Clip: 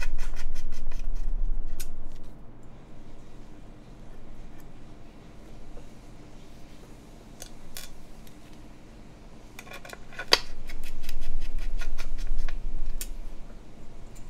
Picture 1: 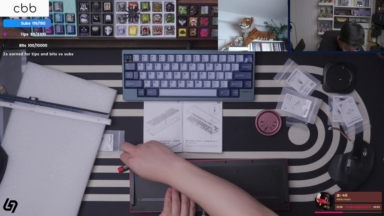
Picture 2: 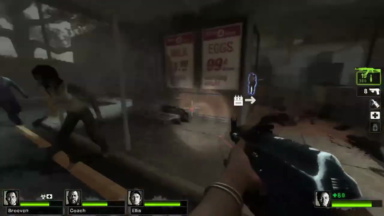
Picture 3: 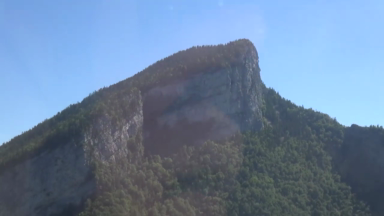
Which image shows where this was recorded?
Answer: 1